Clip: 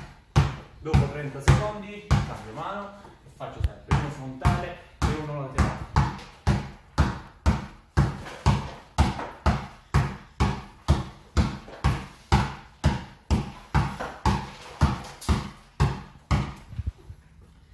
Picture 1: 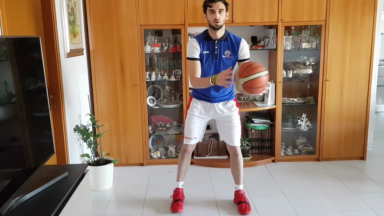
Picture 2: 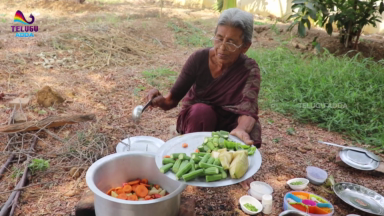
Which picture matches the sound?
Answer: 1